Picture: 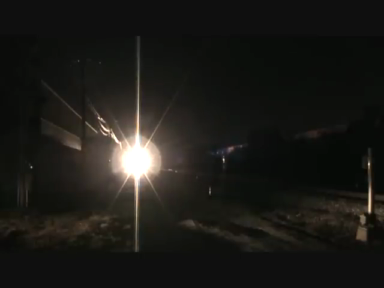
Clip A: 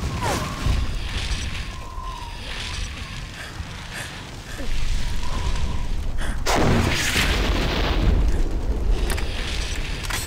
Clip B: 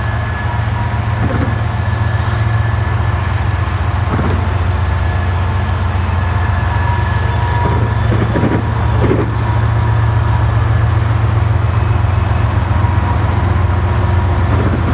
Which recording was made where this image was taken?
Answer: B